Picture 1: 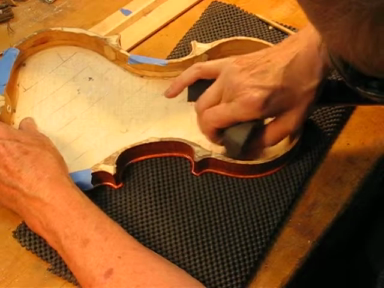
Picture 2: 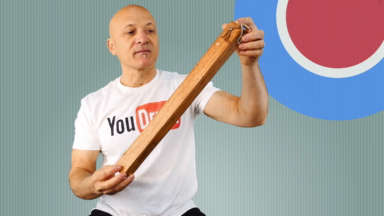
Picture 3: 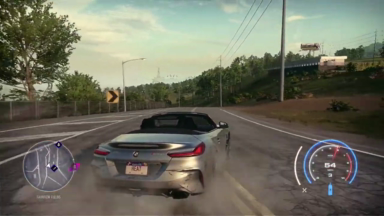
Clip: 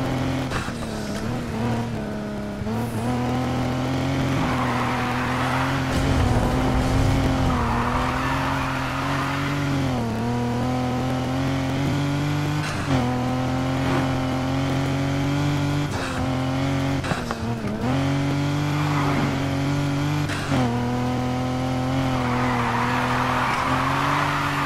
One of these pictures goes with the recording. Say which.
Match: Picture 3